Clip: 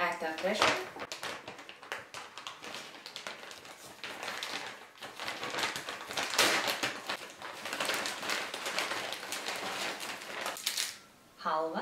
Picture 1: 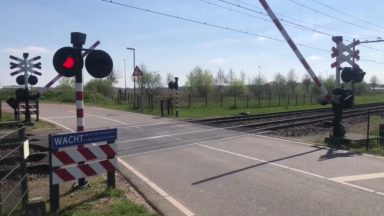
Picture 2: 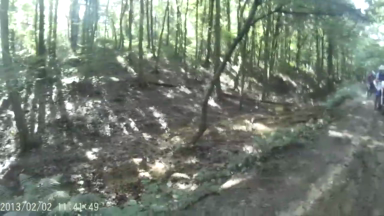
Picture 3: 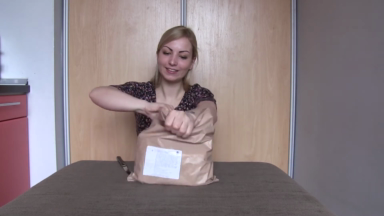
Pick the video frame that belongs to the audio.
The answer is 3